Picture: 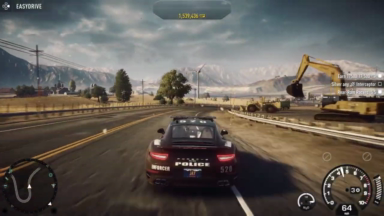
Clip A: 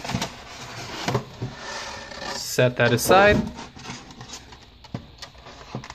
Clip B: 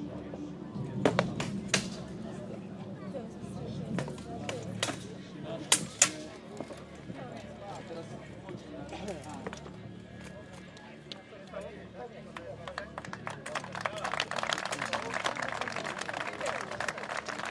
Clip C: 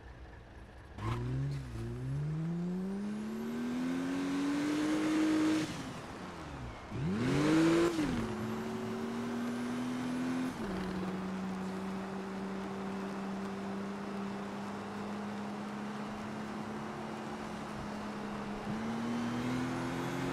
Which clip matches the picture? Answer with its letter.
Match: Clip C